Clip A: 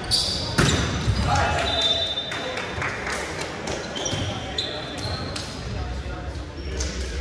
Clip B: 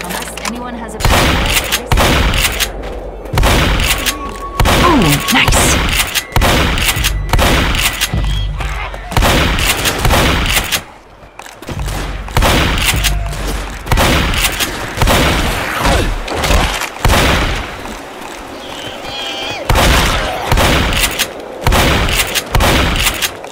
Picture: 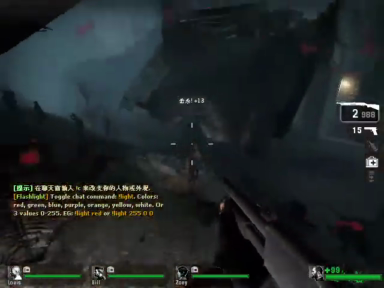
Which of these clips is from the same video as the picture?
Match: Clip B